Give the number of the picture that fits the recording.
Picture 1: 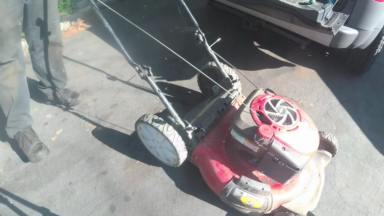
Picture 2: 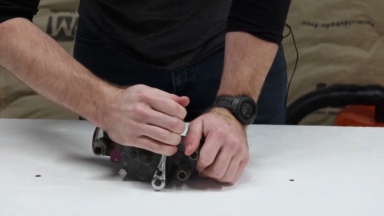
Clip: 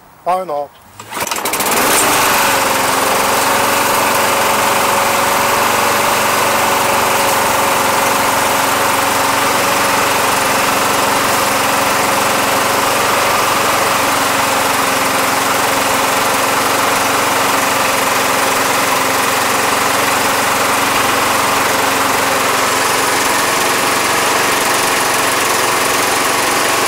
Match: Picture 1